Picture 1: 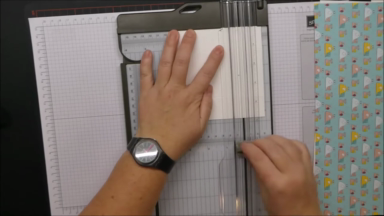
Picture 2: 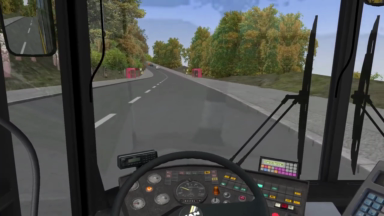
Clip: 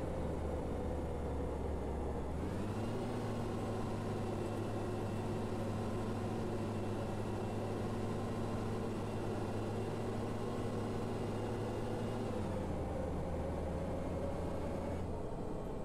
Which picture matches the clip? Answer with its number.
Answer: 2